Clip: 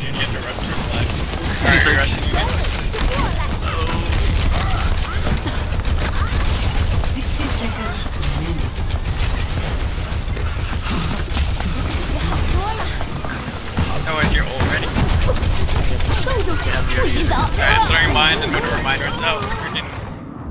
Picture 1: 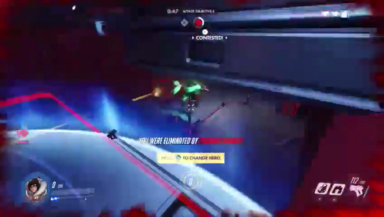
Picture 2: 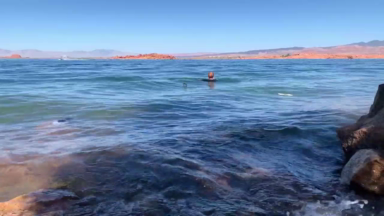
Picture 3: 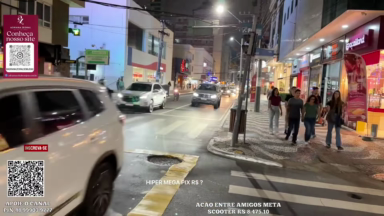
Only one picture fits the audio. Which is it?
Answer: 1